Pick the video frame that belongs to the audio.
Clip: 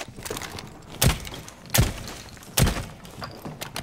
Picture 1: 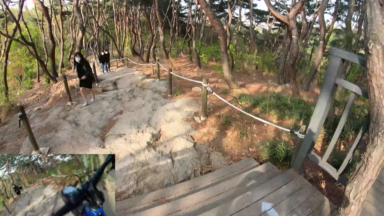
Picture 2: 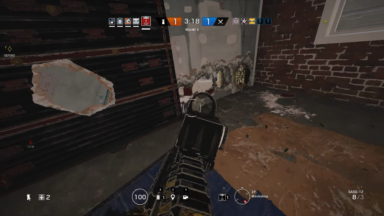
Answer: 2